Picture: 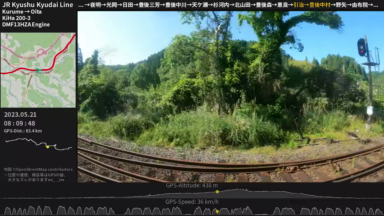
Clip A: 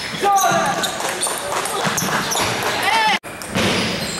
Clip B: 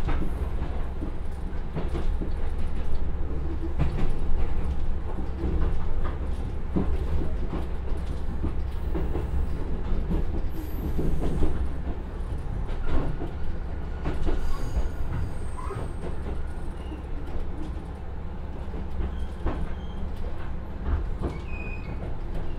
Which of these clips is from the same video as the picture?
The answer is B